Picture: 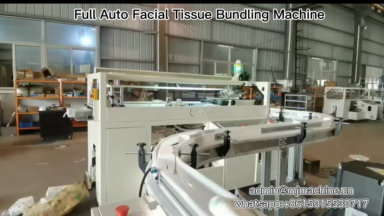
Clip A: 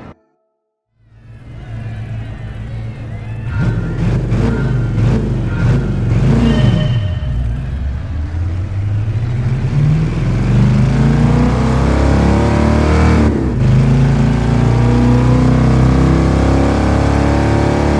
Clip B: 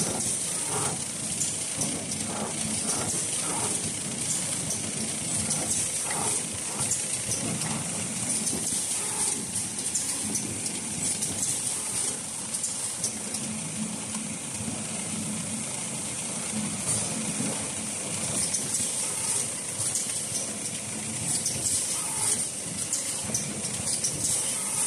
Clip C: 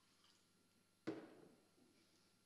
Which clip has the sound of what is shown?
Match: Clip B